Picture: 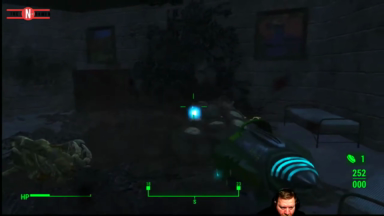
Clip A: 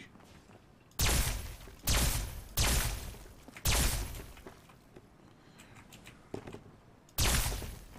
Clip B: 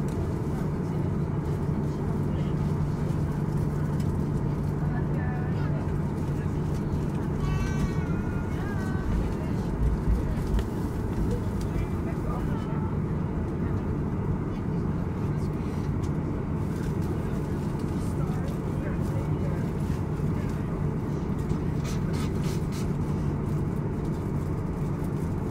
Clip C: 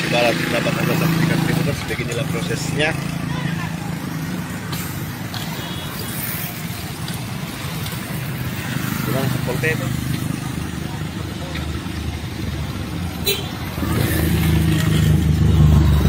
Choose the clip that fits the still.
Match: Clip A